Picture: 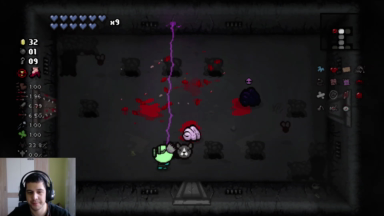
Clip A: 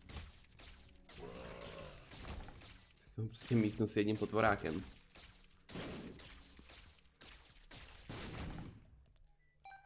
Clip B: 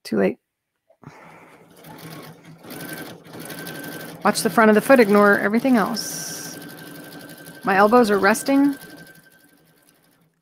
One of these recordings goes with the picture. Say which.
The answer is A